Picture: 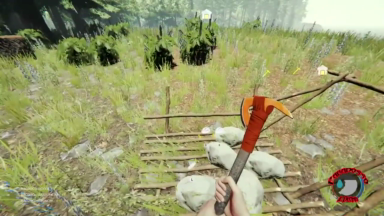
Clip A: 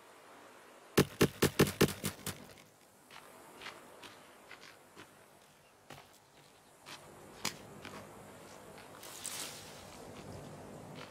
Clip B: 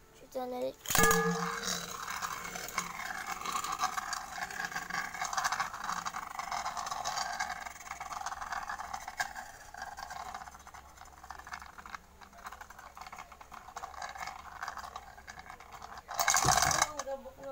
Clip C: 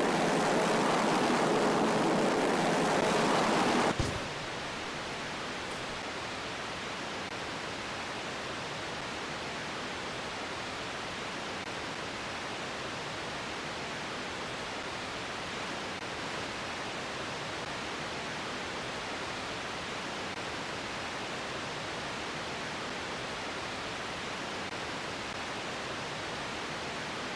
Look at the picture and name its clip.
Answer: A